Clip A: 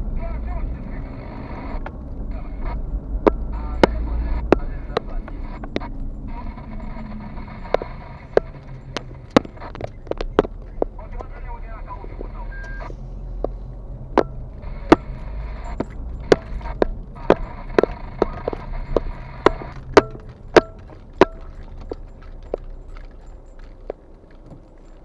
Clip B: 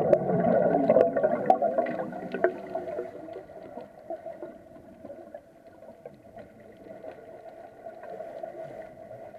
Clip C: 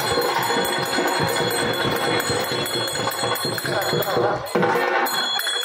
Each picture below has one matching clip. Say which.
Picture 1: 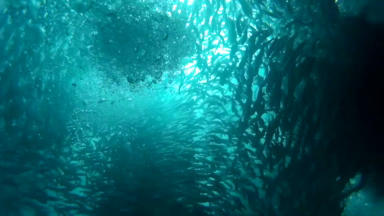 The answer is B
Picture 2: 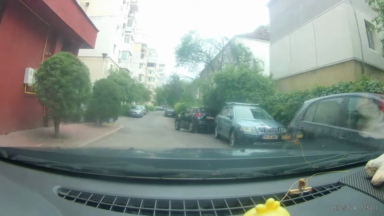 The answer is A